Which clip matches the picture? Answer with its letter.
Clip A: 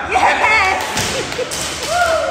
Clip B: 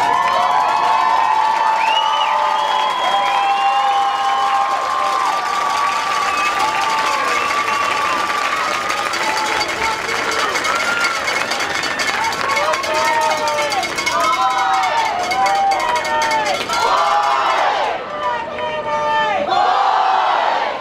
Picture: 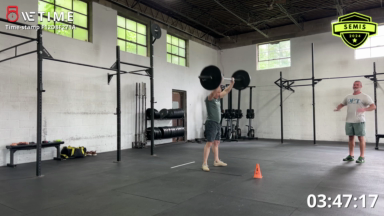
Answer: A